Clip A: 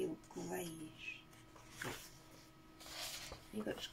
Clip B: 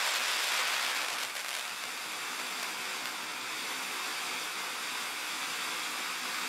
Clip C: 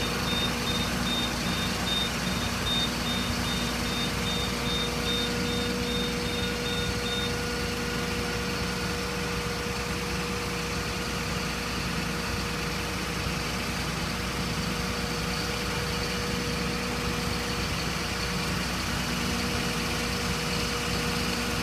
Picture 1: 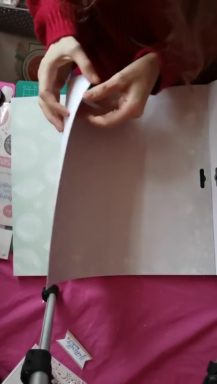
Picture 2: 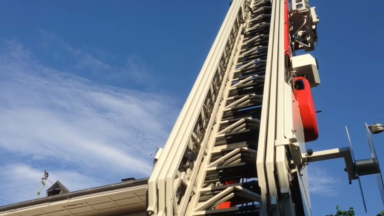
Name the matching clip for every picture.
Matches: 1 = A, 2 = C